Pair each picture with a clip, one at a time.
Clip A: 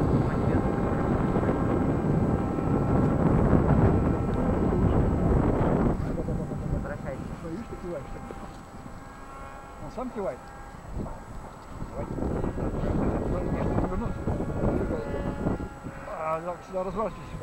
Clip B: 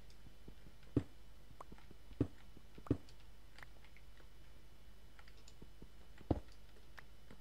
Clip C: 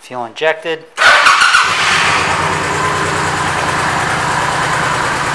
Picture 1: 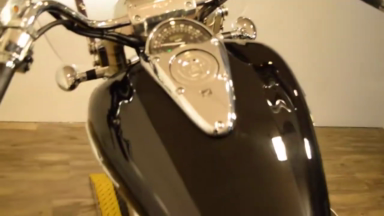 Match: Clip C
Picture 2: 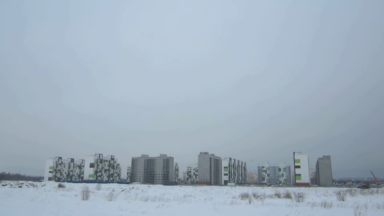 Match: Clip A